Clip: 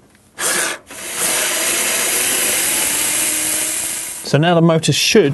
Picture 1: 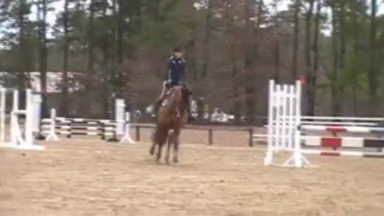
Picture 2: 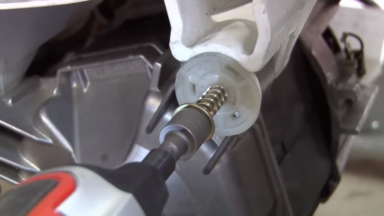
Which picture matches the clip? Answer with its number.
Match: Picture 2